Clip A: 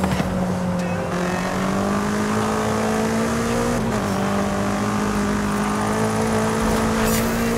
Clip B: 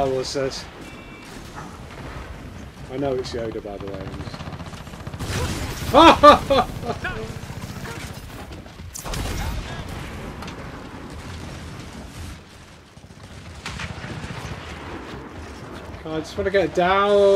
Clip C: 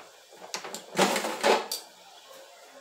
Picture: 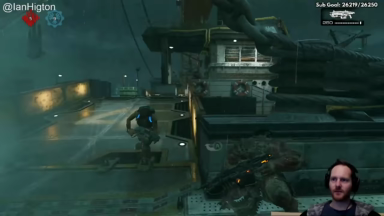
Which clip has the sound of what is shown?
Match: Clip B